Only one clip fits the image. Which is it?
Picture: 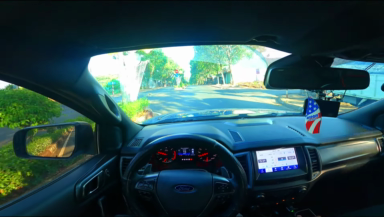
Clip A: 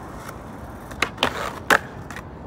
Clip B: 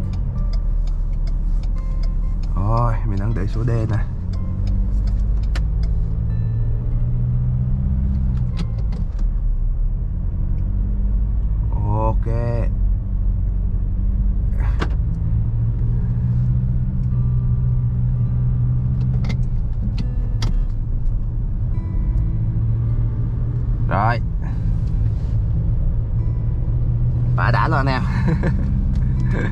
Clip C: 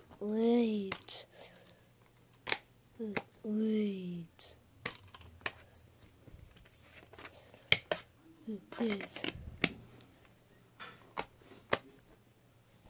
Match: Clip B